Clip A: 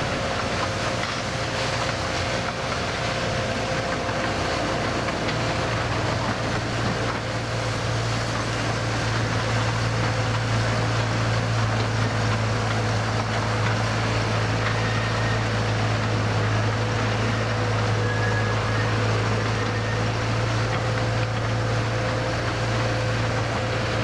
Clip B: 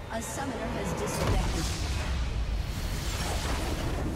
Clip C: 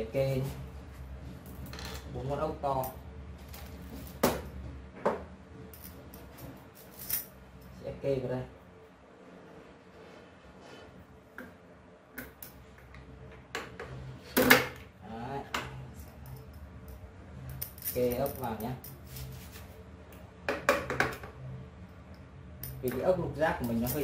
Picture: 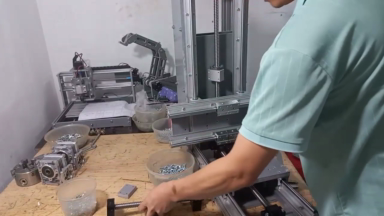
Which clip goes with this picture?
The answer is C